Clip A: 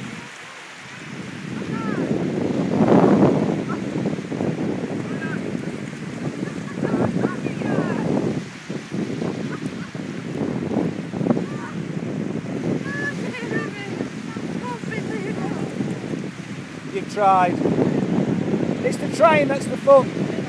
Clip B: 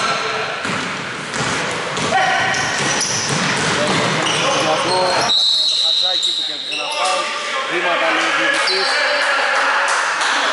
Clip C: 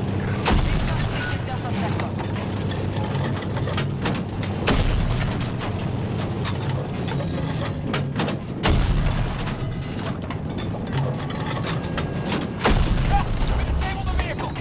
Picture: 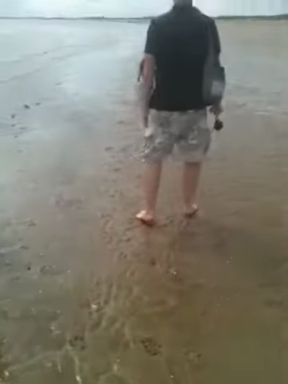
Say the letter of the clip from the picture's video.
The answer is A